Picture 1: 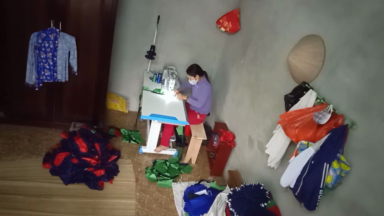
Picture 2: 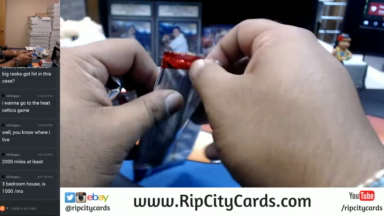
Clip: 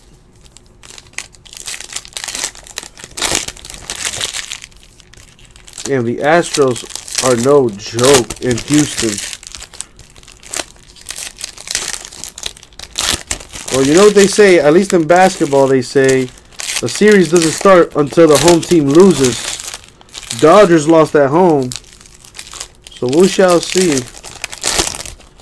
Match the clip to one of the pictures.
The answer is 2